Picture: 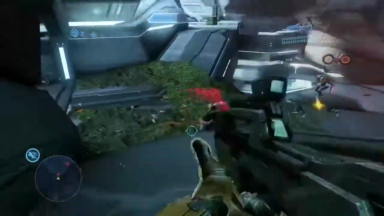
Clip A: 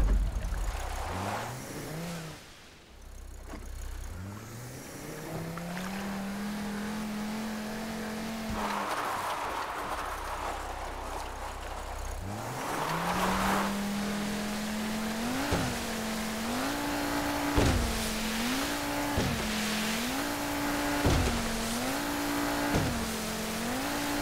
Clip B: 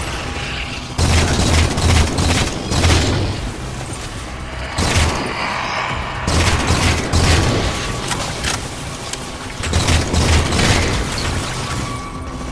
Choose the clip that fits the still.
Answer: B